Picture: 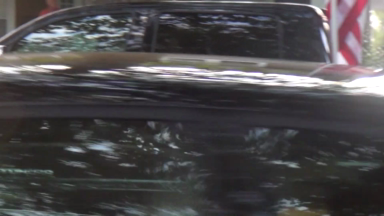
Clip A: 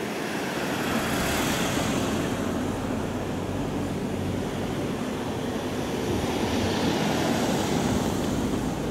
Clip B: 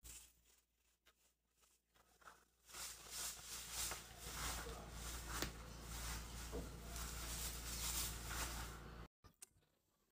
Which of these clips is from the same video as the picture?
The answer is A